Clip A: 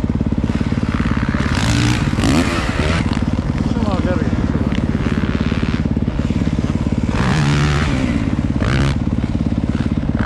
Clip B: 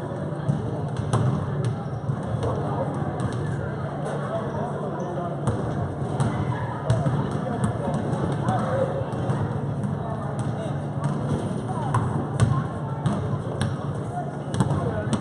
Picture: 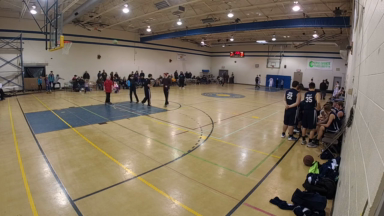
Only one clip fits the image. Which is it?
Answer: B